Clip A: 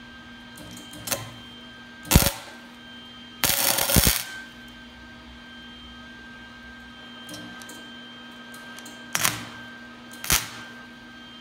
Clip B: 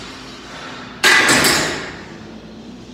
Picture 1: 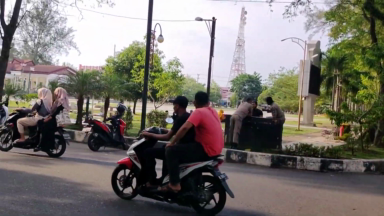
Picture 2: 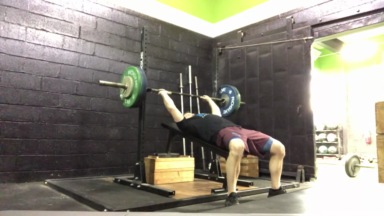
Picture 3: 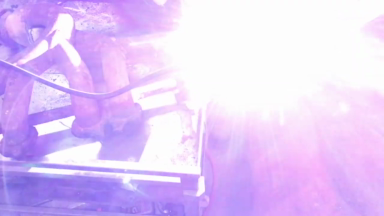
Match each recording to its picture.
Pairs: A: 3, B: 2